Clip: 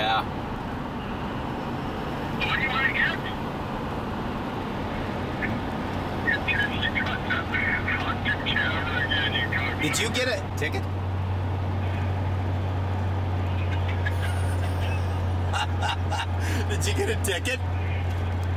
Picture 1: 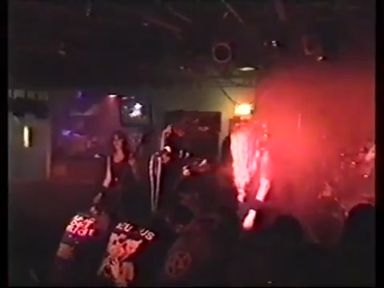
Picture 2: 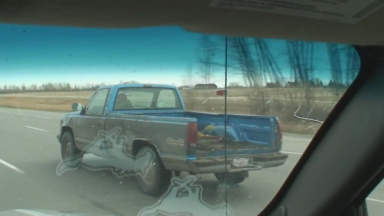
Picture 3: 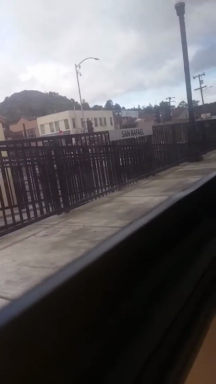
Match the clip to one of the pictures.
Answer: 2